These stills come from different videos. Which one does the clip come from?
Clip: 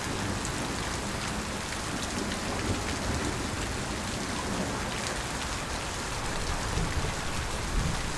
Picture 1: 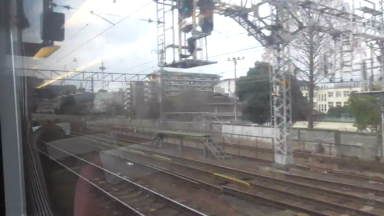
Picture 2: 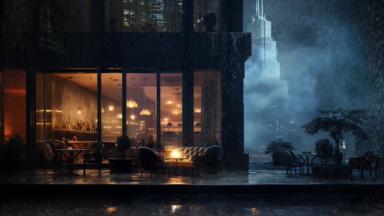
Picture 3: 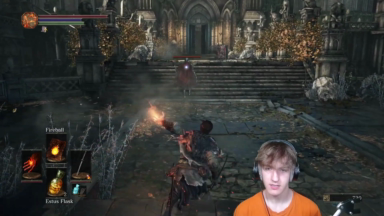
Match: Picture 2